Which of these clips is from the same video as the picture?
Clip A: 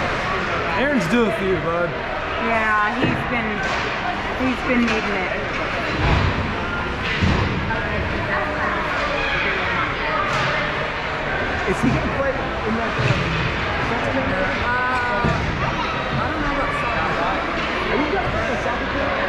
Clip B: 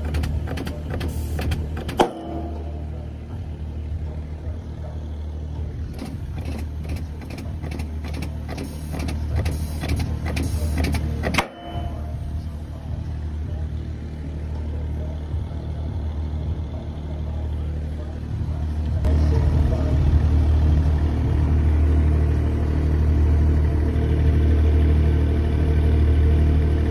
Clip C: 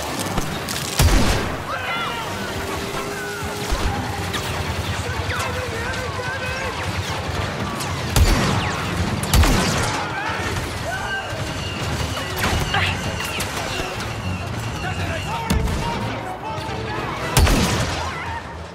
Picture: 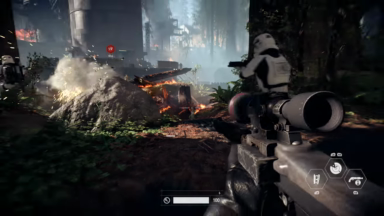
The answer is C